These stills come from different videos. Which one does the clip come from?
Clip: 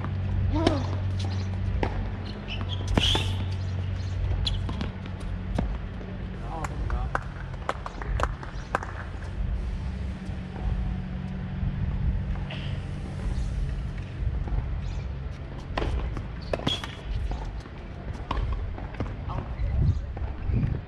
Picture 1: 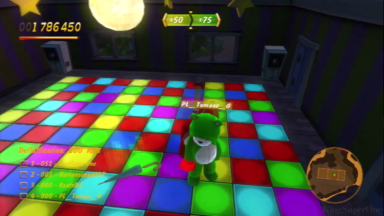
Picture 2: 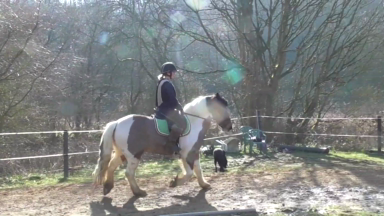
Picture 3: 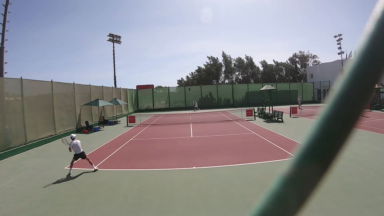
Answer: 3